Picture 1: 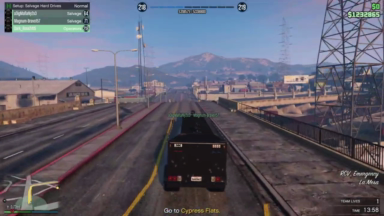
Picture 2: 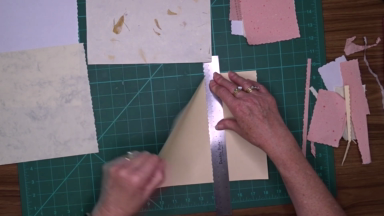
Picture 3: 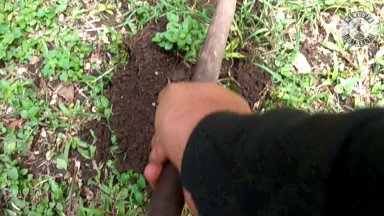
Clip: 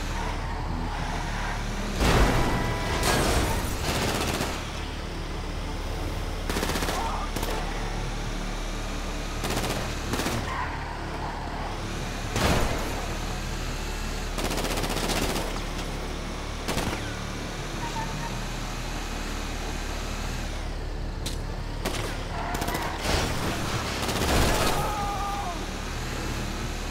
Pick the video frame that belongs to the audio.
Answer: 1